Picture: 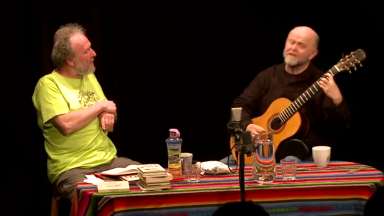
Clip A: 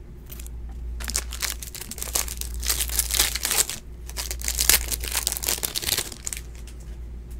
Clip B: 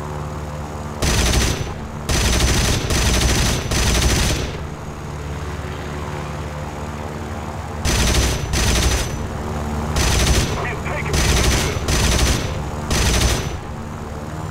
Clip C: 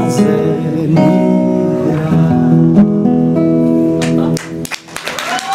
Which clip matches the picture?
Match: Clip C